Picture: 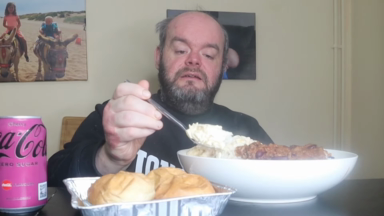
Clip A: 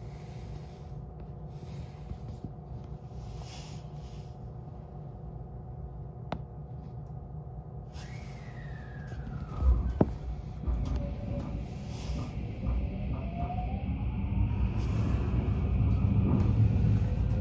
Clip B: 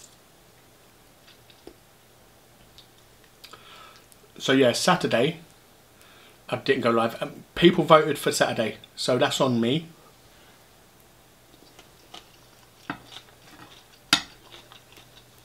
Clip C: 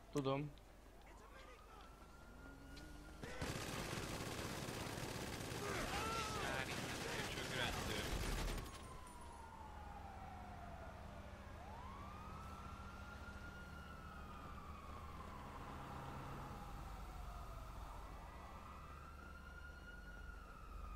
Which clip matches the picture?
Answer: B